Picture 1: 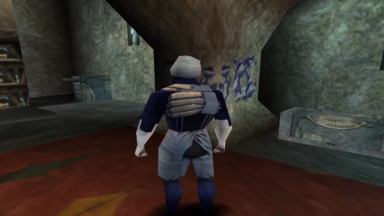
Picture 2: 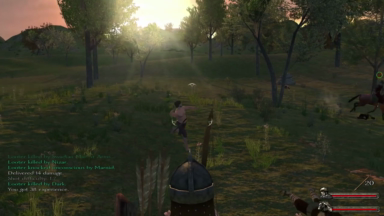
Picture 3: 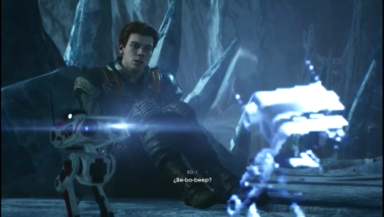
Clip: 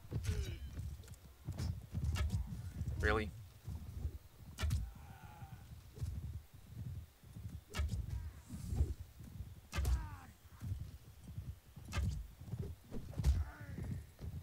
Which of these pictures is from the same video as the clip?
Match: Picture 2